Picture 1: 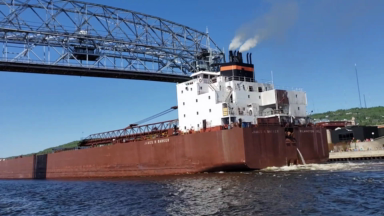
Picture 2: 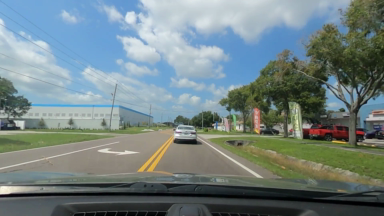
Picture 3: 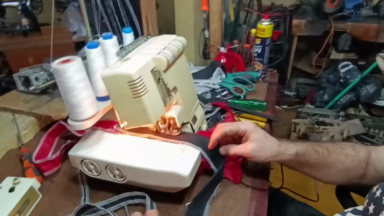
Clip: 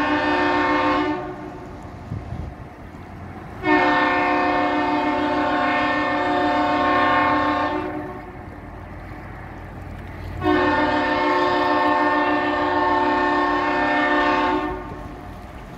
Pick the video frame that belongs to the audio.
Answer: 1